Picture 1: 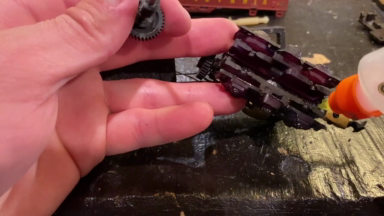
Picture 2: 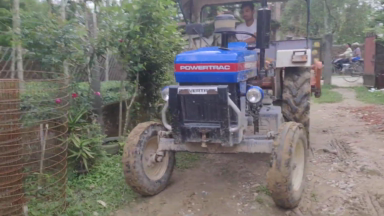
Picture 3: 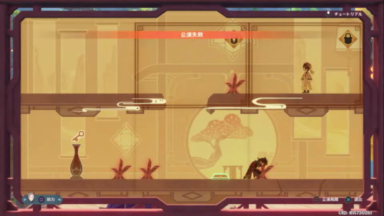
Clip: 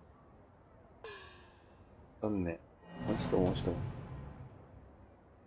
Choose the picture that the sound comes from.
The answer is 3